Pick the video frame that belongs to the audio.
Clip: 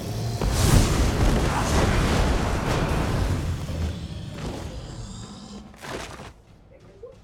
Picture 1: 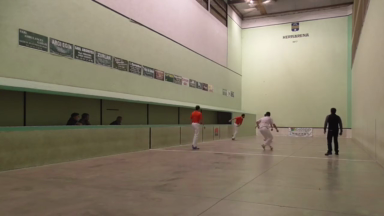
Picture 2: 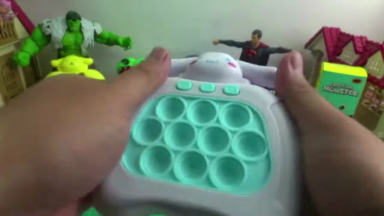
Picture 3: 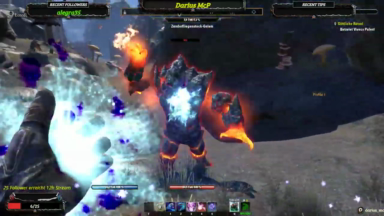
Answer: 3